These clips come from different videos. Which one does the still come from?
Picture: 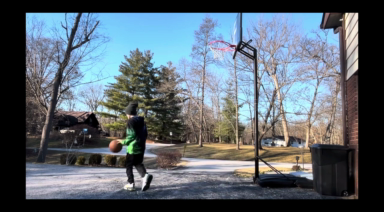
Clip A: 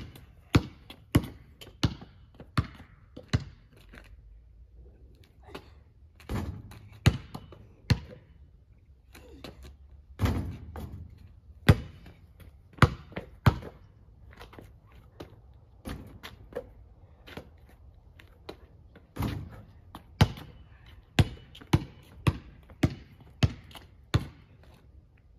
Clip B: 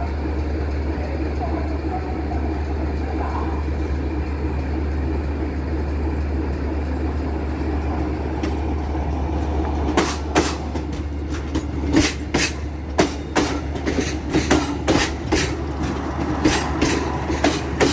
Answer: A